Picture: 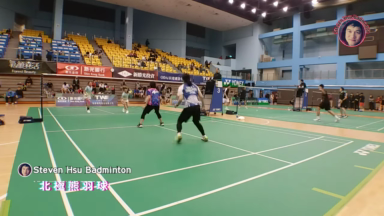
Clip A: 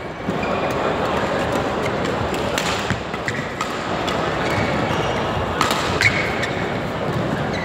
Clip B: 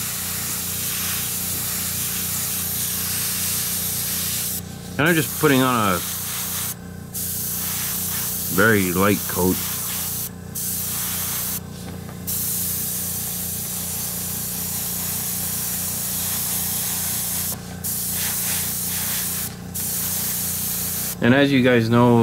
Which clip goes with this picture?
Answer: A